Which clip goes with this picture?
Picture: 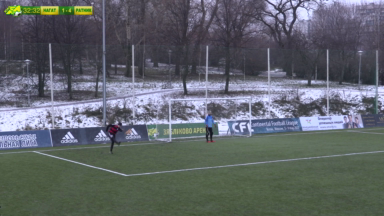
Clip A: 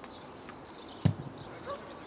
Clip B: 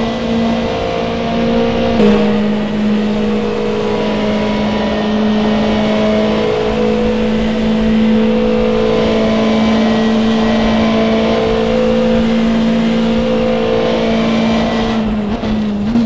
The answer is A